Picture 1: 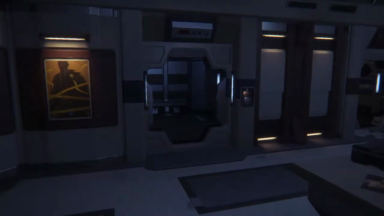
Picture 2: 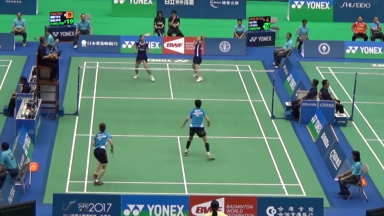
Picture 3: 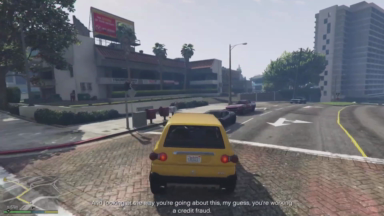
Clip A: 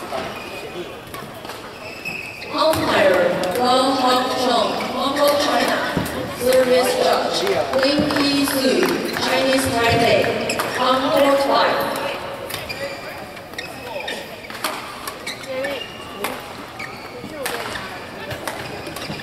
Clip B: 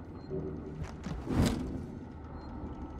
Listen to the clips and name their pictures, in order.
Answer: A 2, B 1